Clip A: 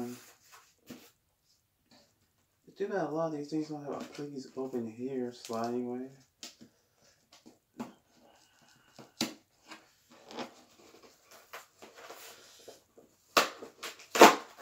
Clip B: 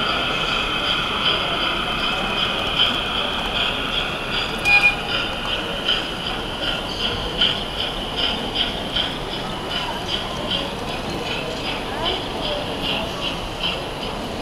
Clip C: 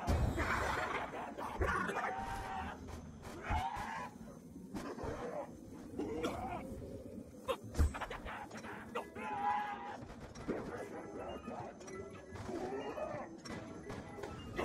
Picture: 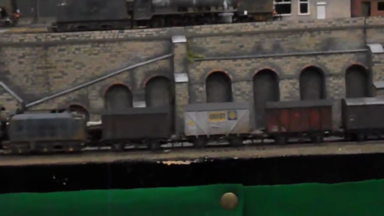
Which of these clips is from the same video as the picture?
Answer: B